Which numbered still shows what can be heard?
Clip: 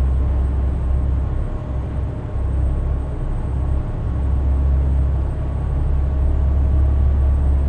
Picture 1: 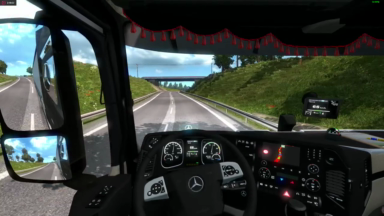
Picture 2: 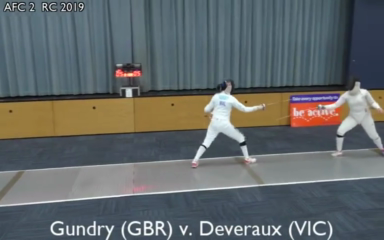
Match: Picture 1